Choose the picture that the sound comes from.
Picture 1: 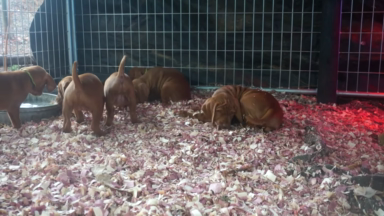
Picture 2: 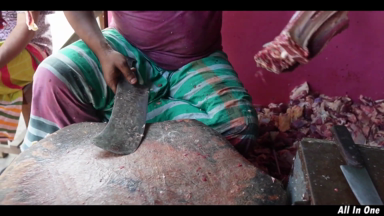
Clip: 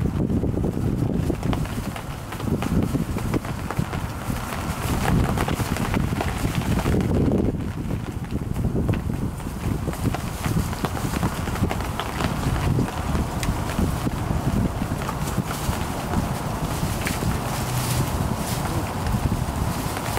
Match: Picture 1